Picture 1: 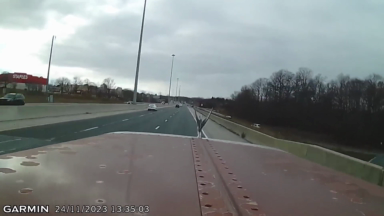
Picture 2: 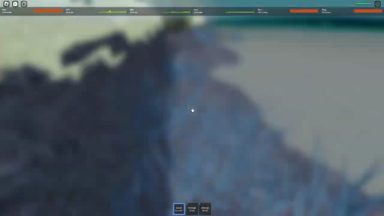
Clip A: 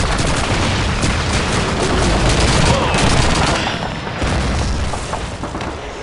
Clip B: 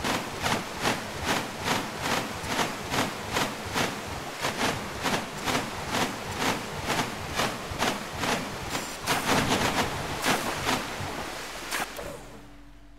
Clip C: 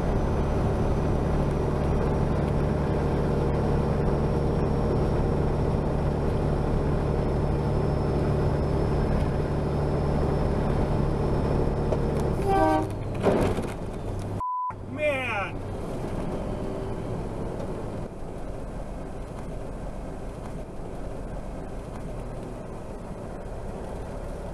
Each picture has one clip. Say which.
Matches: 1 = C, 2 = B